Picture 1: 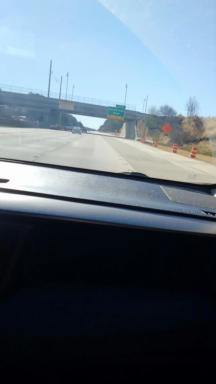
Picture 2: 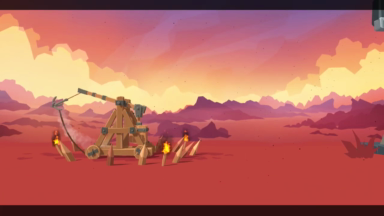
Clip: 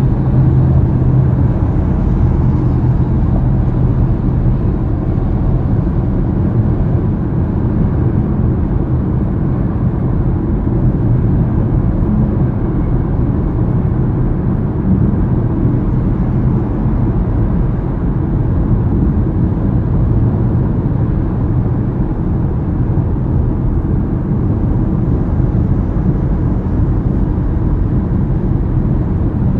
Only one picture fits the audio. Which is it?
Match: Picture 1